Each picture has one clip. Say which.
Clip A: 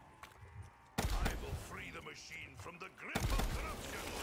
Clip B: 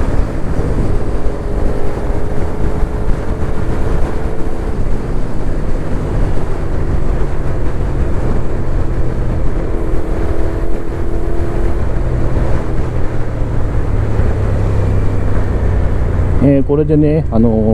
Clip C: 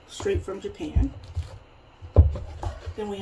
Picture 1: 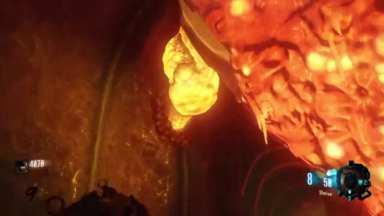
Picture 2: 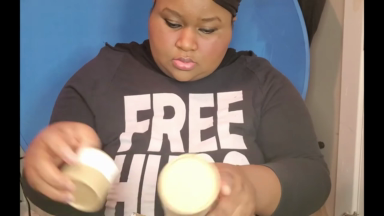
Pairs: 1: A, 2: C